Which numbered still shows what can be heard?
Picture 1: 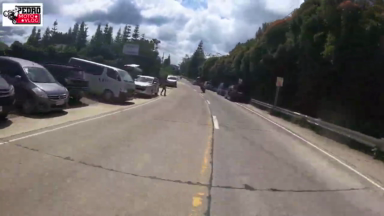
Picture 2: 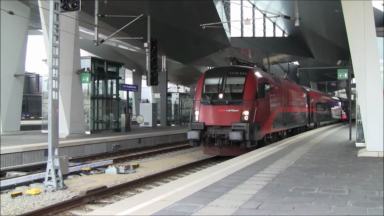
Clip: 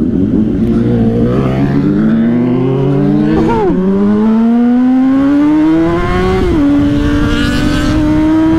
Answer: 1